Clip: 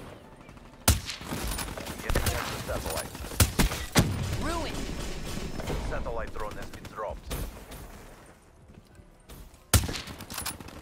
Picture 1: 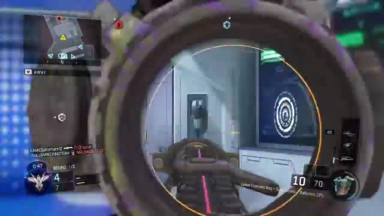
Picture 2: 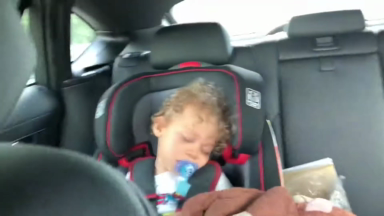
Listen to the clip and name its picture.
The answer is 1